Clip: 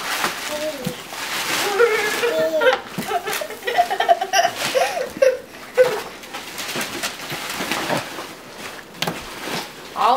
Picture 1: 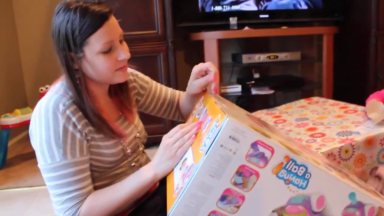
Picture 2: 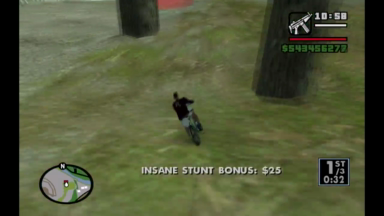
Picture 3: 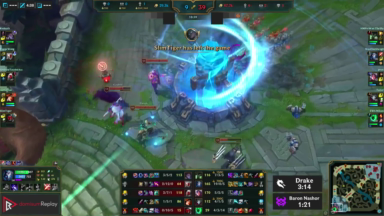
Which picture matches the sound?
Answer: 1